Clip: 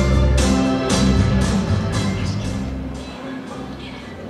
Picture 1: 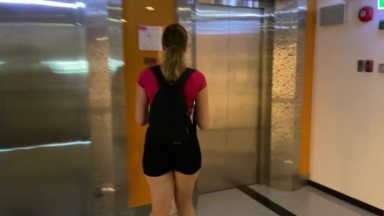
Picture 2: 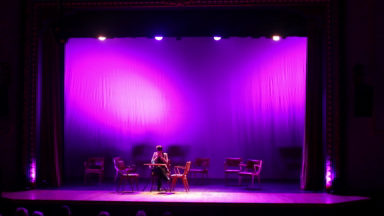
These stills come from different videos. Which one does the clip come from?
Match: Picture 2